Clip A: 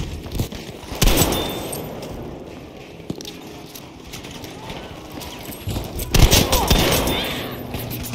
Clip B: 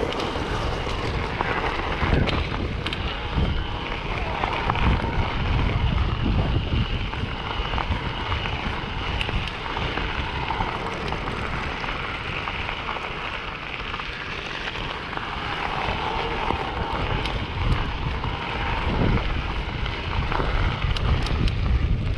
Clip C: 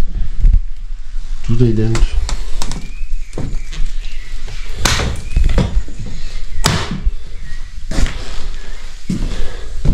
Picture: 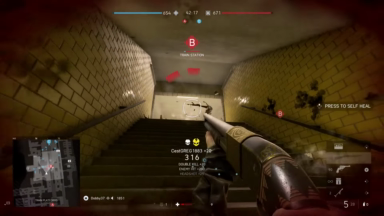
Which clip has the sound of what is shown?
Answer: A